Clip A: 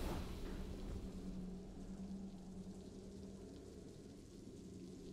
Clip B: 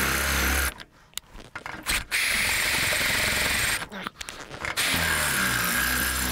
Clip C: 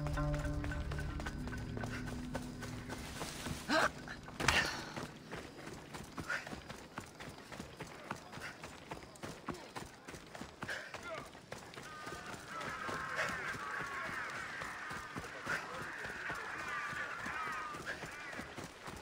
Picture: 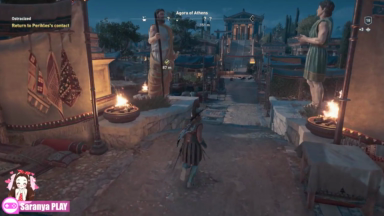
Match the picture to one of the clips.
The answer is C